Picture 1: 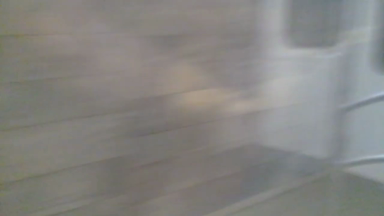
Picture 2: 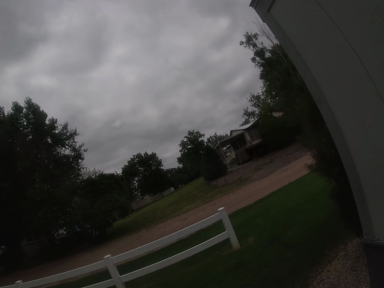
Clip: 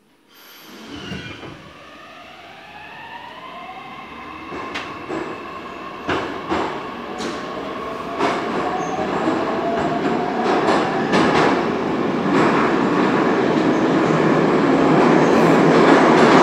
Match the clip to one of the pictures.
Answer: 1